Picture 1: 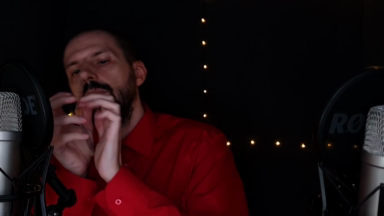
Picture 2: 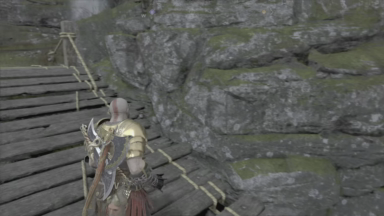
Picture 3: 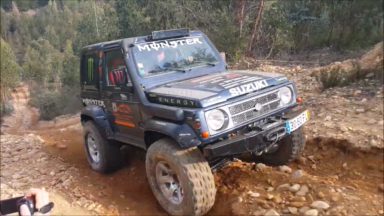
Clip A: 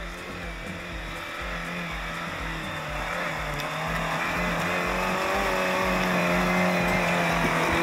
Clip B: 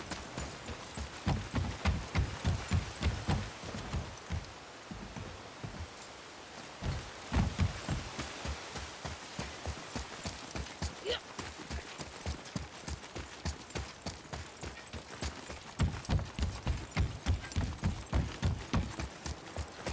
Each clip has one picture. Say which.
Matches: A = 3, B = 2